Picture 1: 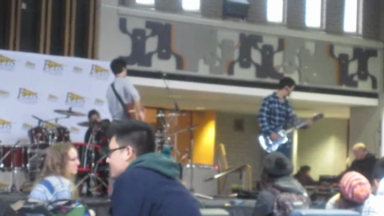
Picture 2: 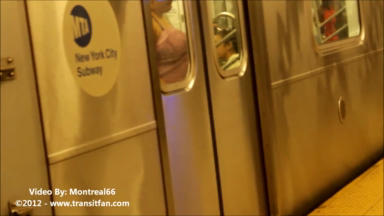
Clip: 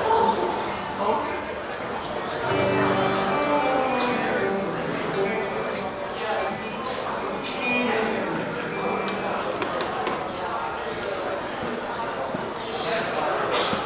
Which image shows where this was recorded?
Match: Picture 1